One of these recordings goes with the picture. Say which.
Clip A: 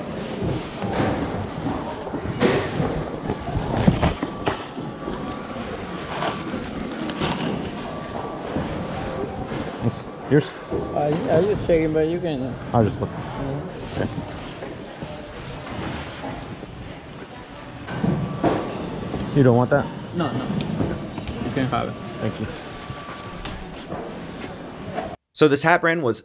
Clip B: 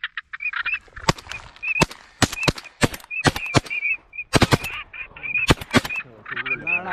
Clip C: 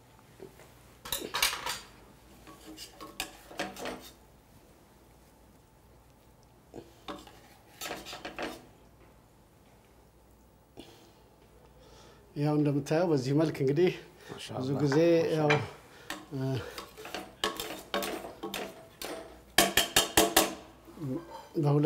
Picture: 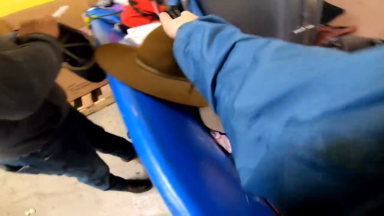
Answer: A